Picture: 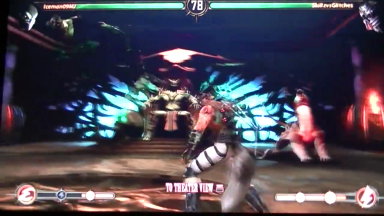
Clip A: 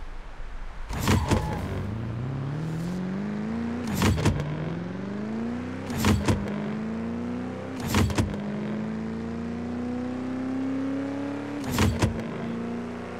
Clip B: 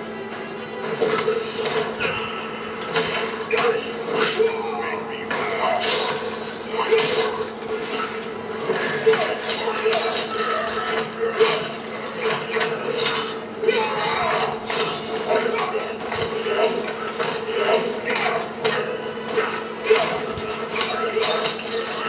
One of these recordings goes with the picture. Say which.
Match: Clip B